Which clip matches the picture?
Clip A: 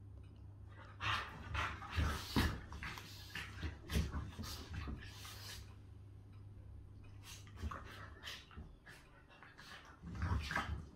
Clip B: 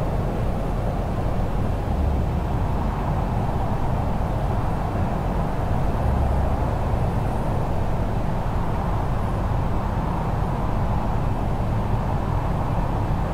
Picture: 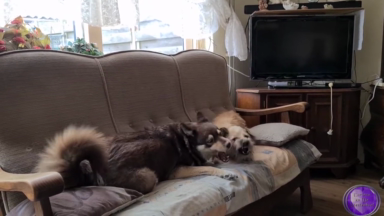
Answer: A